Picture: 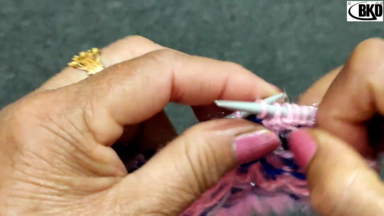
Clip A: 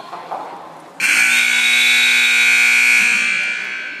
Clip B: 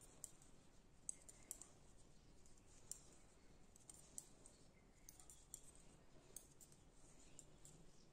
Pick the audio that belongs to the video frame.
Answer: B